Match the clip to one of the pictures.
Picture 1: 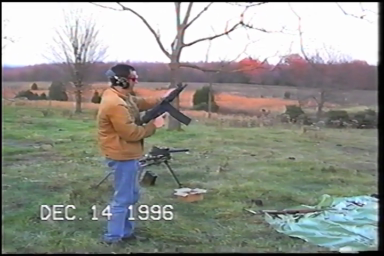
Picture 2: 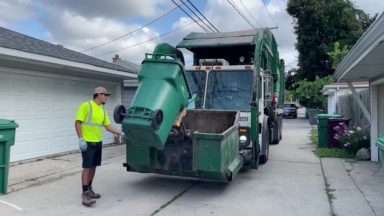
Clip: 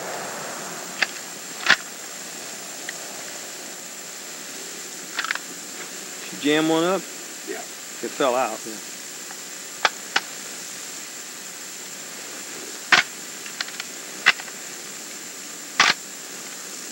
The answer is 1